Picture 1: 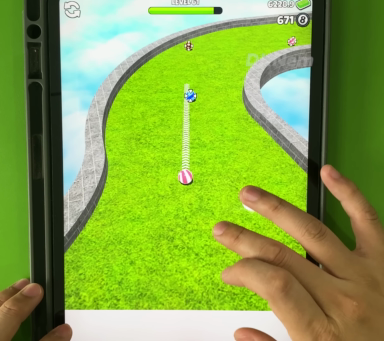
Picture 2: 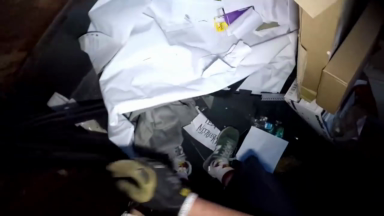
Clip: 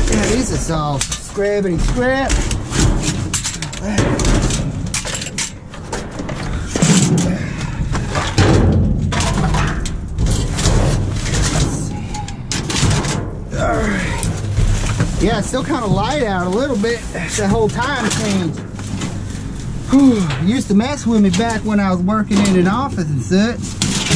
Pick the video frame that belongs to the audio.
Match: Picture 2